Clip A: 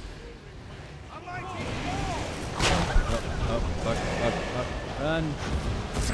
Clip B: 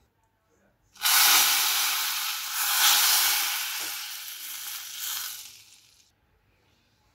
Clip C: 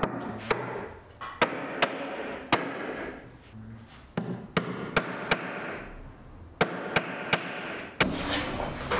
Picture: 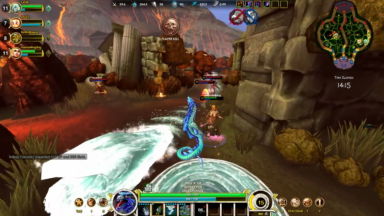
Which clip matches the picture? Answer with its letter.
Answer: A